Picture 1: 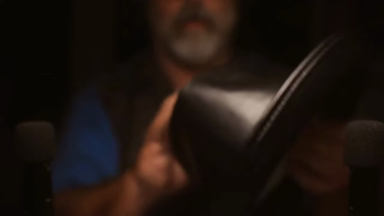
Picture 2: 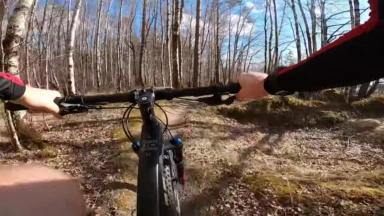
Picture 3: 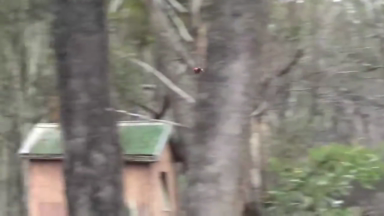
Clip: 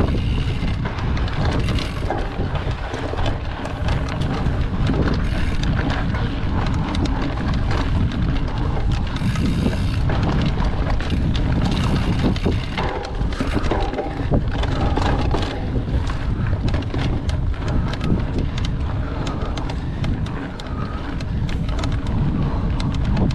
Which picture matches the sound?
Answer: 2